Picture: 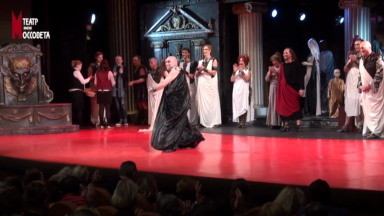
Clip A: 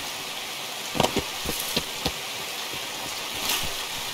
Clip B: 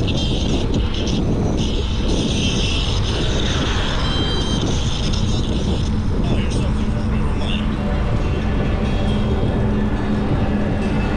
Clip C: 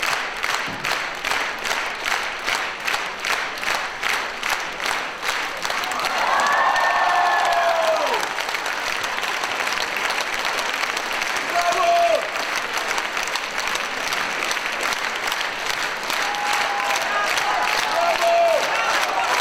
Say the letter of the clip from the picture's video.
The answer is C